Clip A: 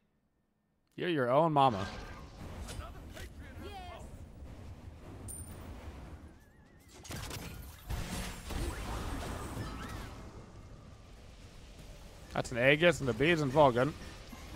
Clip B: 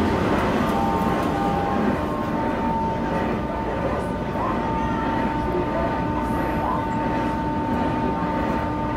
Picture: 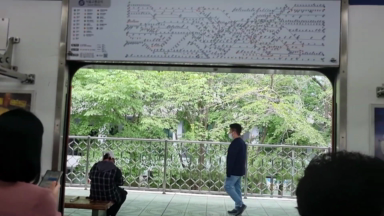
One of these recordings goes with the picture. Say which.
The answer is B